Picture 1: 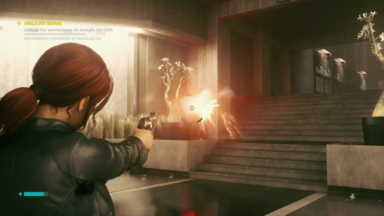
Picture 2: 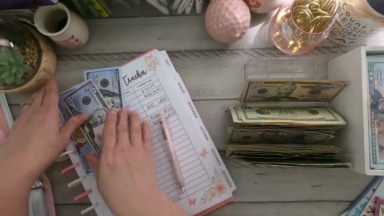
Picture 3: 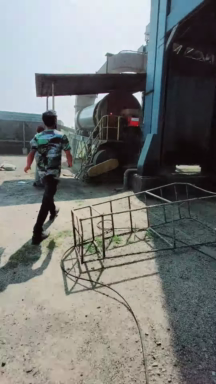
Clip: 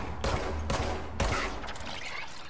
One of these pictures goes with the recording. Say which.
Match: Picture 1